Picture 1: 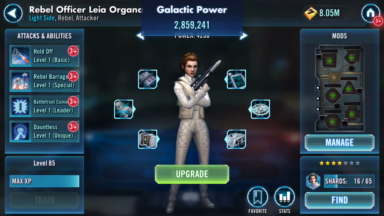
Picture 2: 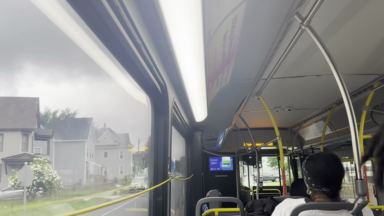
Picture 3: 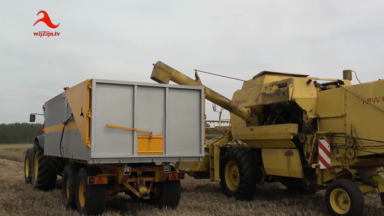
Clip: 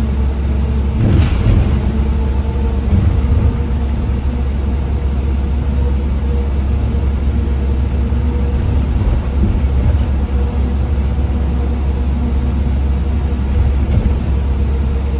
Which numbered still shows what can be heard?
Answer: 2